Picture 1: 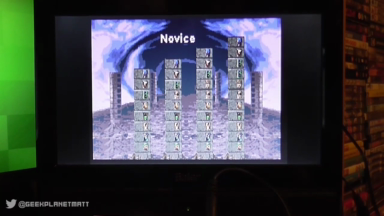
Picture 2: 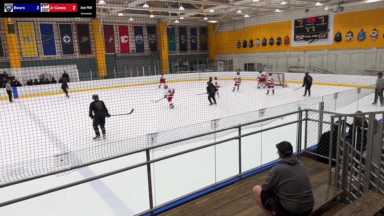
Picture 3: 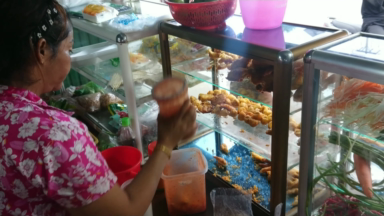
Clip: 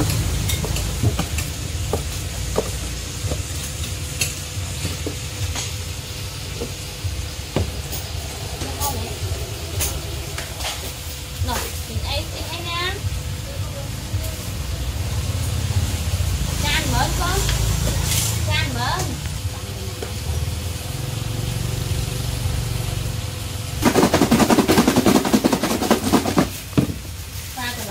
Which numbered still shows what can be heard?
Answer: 3